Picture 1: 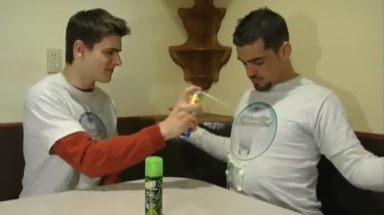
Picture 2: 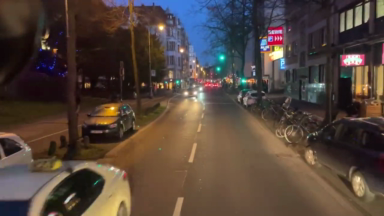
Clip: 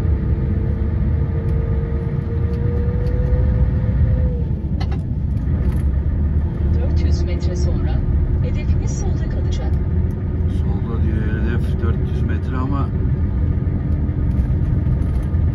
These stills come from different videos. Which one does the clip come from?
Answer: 2